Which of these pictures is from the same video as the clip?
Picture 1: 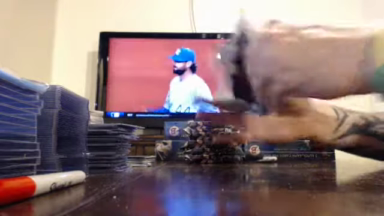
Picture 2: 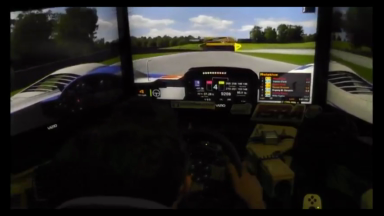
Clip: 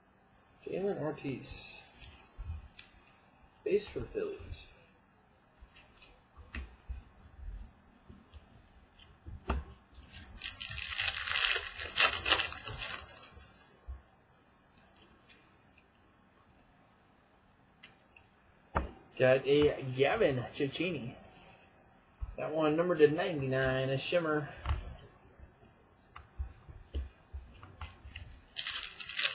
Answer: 1